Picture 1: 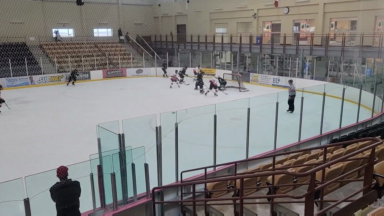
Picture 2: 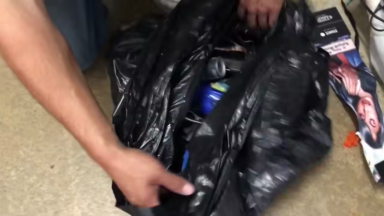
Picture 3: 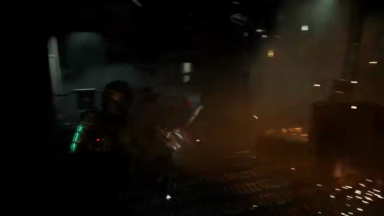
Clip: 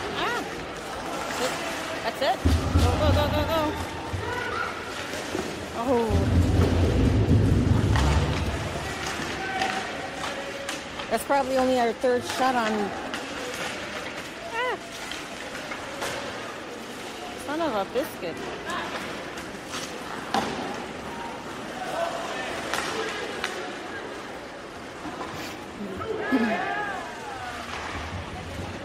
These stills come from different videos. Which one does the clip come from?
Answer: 1